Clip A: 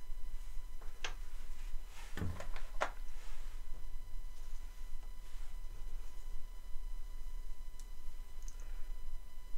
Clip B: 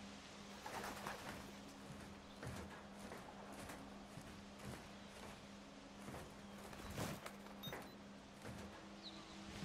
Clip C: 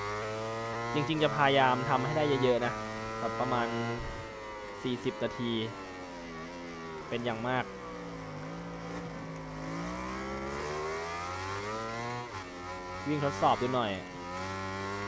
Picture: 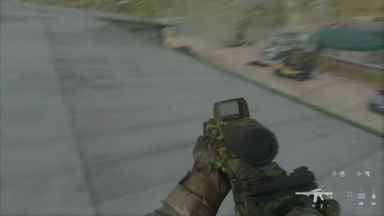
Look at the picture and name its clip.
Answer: B